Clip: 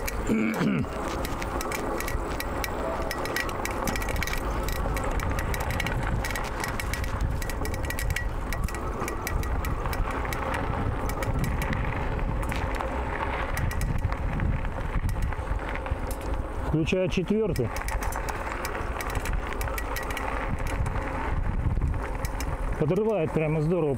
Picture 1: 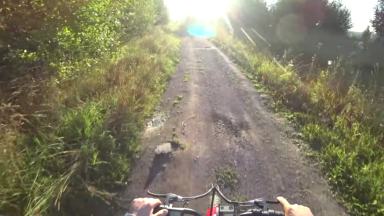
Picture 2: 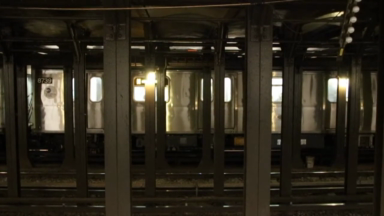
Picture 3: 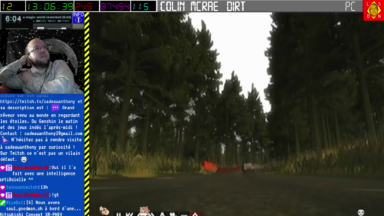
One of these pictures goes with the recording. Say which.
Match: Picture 1